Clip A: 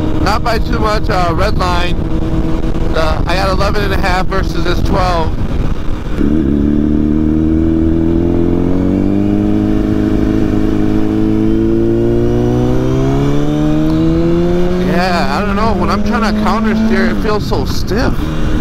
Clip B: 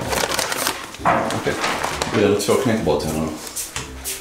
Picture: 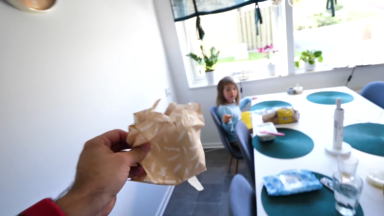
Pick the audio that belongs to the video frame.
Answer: B